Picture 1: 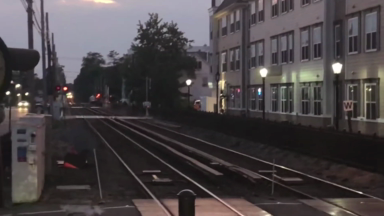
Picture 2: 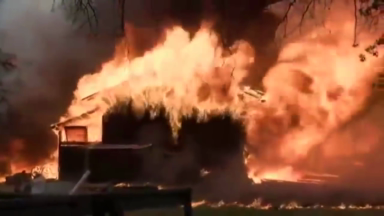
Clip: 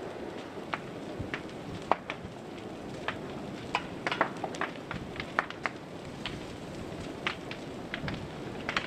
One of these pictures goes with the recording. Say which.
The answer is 2